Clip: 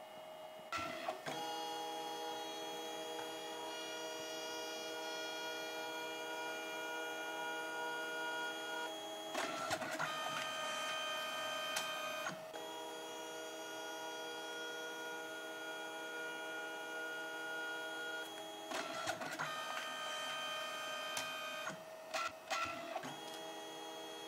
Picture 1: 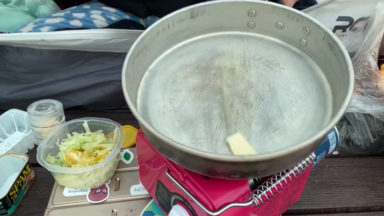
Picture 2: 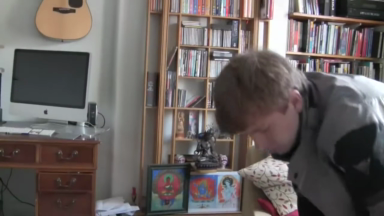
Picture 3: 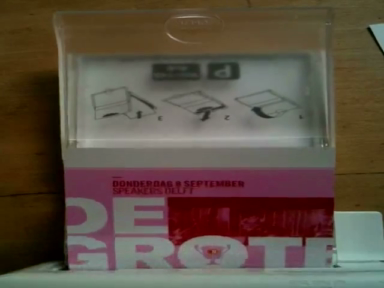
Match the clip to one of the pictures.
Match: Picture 3